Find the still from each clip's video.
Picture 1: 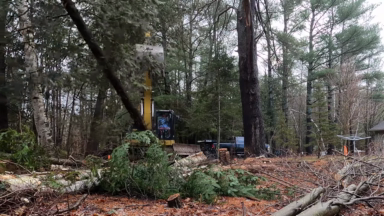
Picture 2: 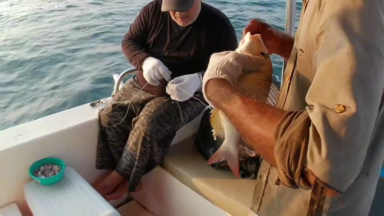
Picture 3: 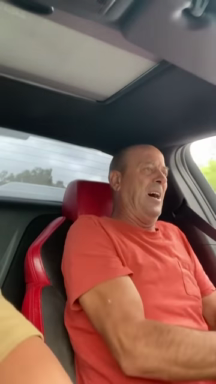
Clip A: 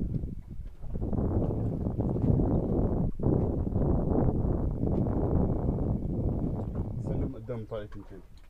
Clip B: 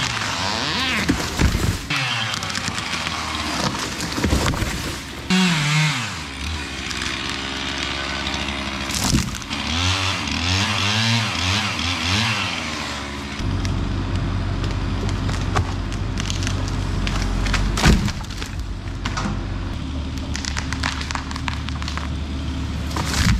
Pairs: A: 2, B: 1